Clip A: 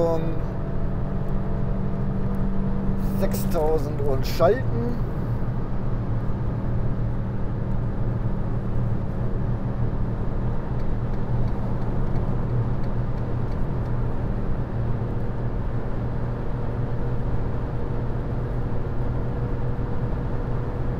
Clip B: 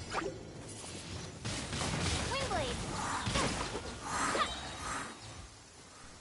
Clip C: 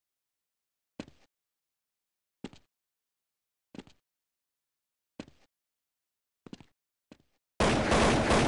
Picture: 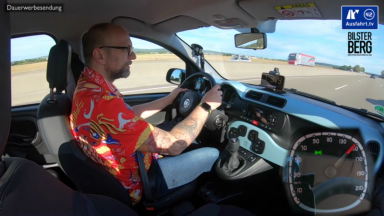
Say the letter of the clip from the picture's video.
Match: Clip A